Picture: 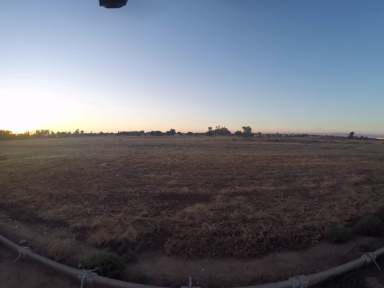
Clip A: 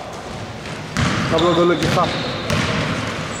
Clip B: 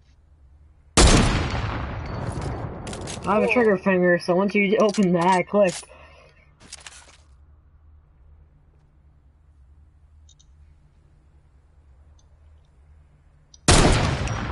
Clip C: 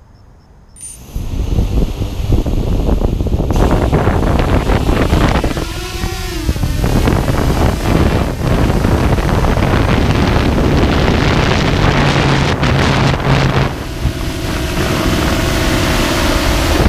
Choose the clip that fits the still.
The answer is C